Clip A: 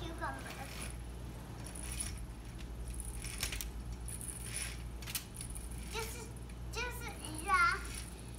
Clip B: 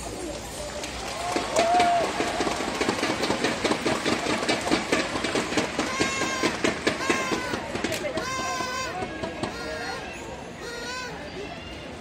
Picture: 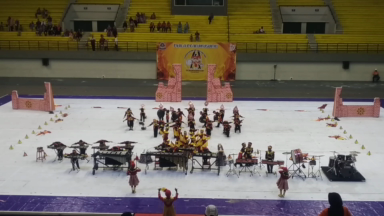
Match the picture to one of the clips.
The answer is B